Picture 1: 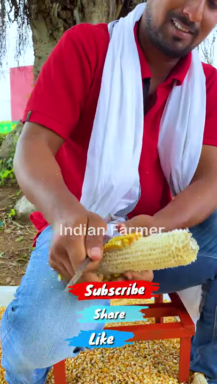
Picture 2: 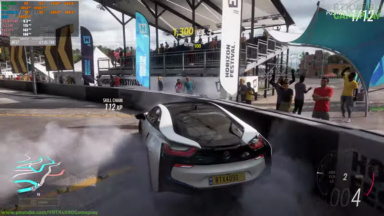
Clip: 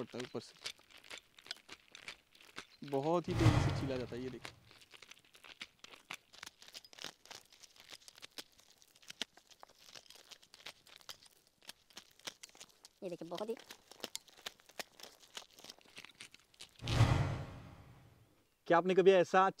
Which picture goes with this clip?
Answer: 1